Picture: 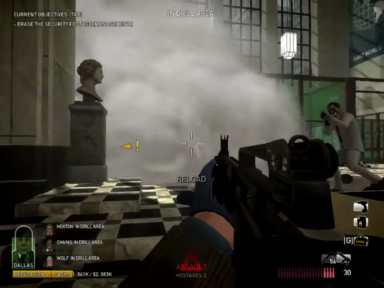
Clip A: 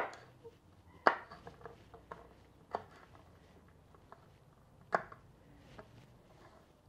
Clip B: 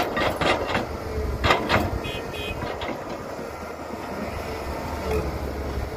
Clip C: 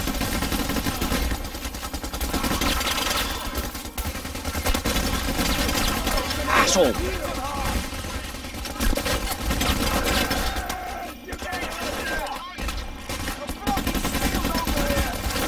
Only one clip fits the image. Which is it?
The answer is C